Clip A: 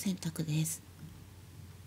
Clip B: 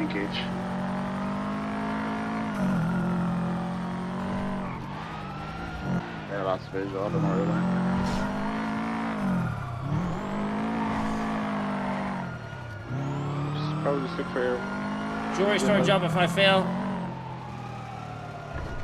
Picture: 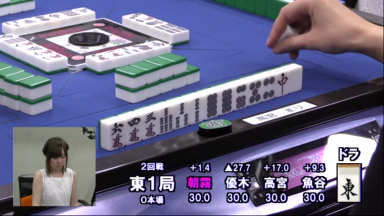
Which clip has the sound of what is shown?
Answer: A